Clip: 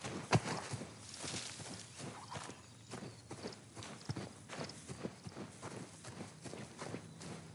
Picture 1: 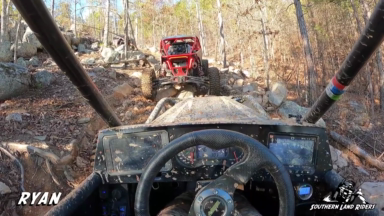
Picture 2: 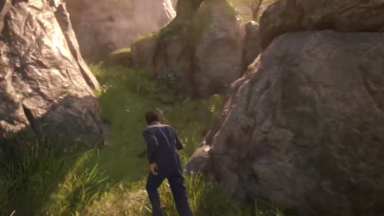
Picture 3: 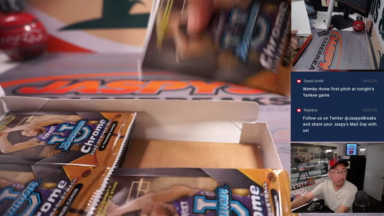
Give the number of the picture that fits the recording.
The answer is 2